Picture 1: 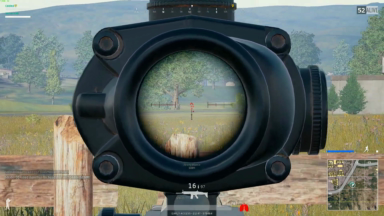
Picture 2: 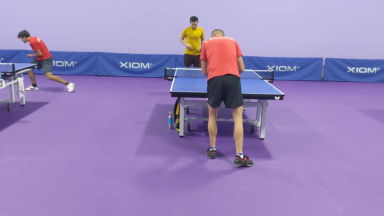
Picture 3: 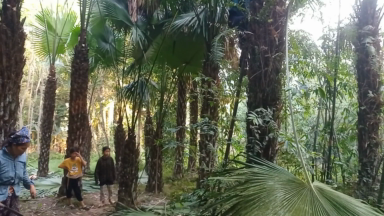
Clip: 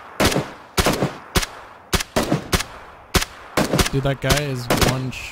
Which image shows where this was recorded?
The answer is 1